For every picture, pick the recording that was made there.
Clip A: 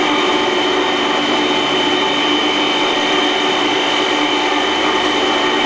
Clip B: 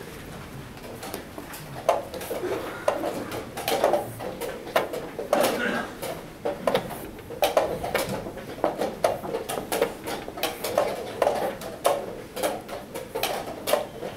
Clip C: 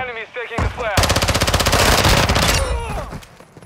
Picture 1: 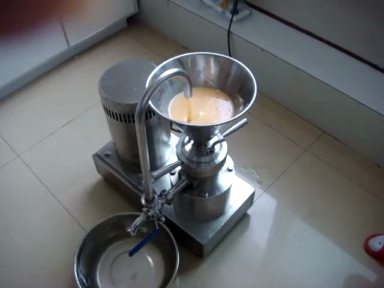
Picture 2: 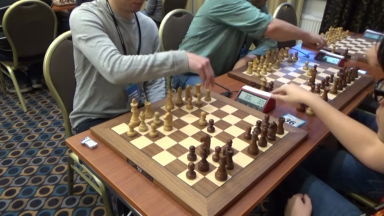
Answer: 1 A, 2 B